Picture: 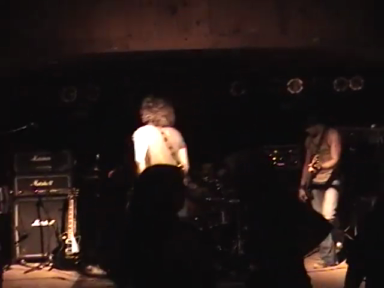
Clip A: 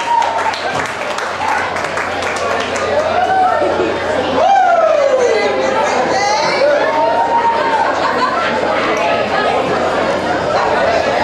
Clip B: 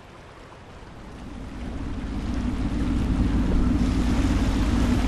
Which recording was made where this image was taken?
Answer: A